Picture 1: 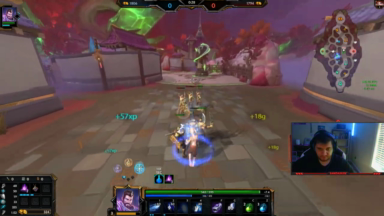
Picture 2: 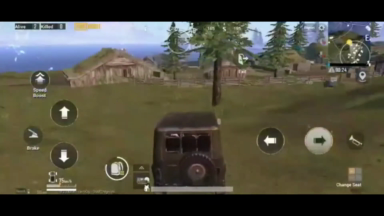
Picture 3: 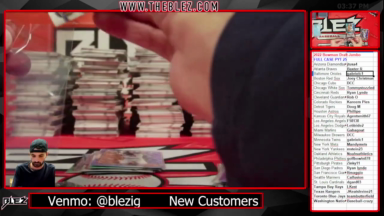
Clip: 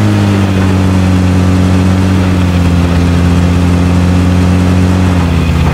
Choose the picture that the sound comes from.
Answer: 2